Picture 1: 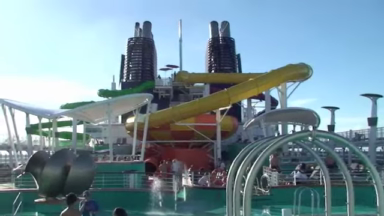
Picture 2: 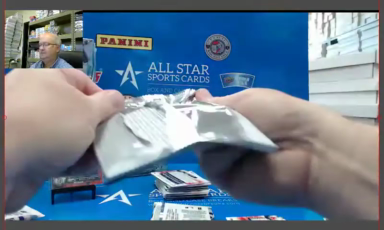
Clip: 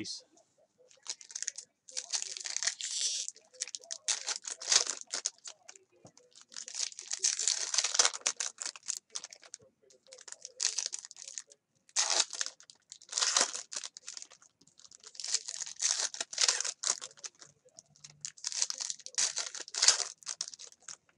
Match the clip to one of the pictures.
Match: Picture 2